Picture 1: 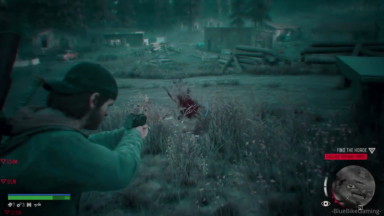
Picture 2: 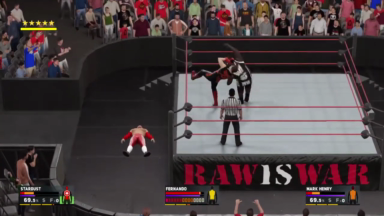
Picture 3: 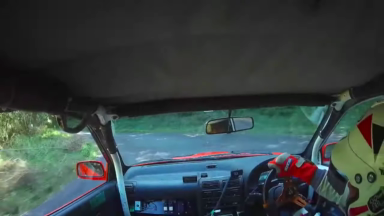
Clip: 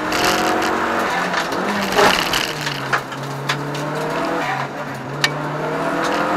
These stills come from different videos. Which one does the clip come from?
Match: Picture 3